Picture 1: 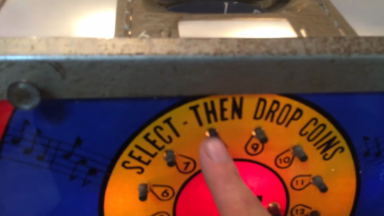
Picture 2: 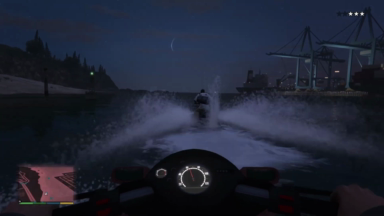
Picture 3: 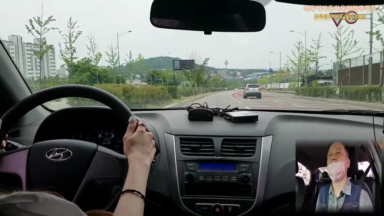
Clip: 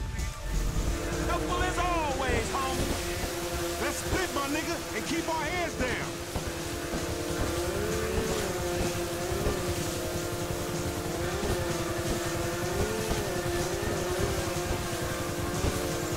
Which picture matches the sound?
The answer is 2